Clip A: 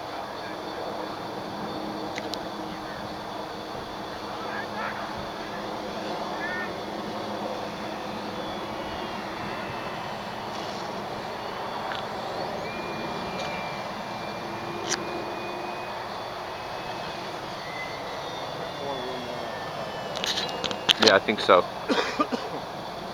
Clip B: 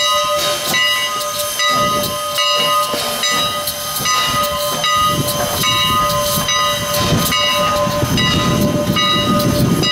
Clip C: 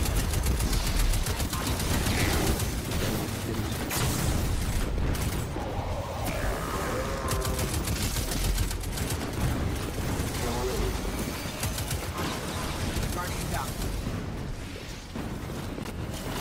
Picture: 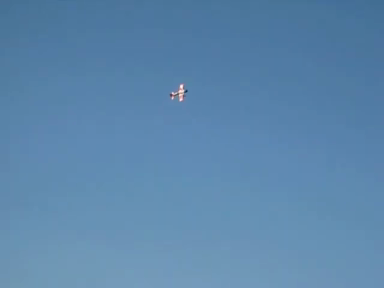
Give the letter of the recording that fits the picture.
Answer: A